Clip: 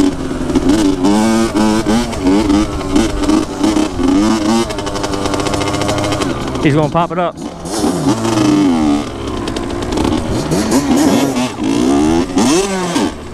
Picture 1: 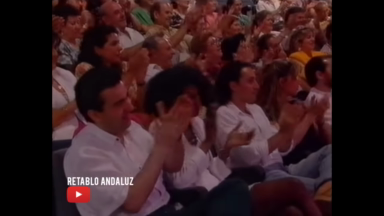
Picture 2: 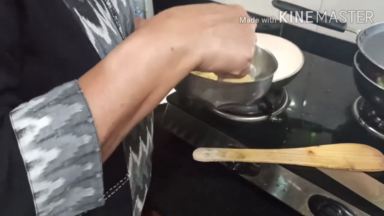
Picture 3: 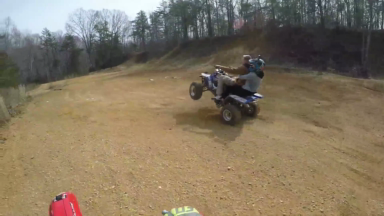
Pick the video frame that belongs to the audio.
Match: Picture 3